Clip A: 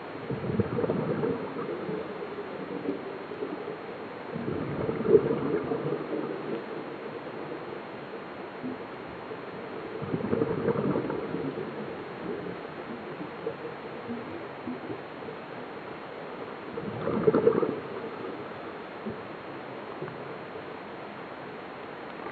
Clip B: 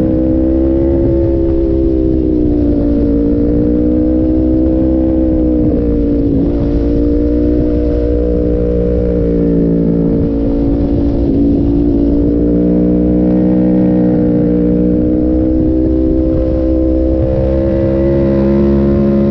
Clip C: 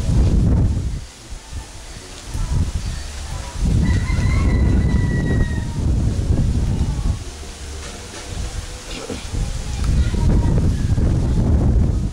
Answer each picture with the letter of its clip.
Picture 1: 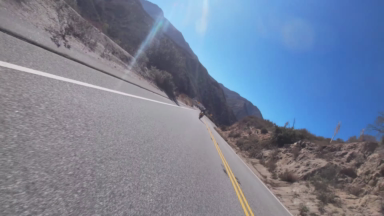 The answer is B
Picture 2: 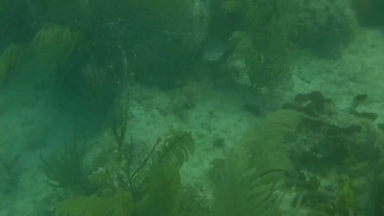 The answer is A